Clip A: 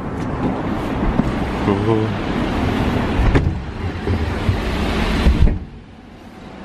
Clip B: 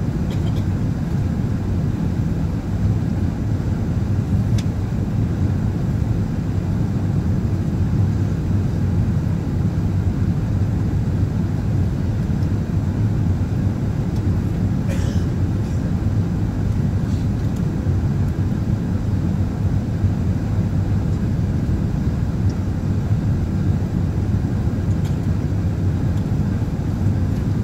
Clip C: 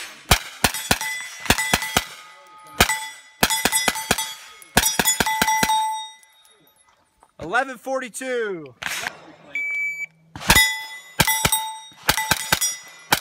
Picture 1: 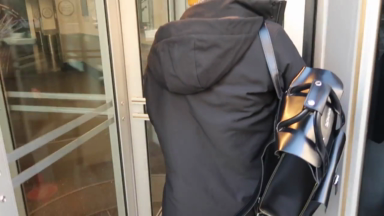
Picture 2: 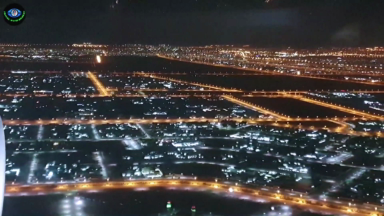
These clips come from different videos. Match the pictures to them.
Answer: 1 A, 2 B